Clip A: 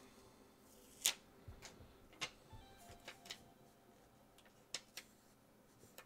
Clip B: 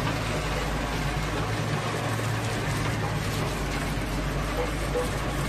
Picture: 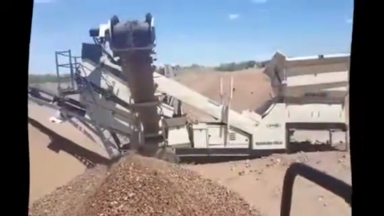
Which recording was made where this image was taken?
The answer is B